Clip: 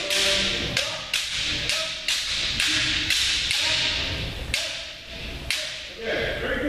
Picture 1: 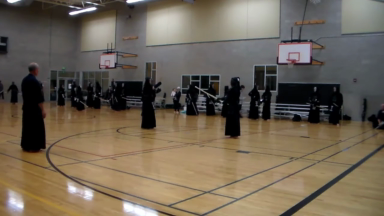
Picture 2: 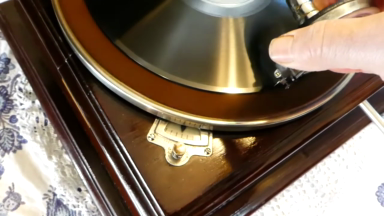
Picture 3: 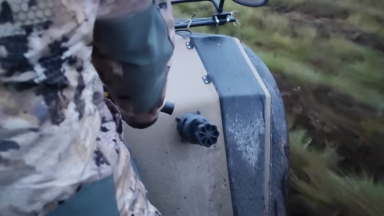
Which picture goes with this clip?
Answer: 1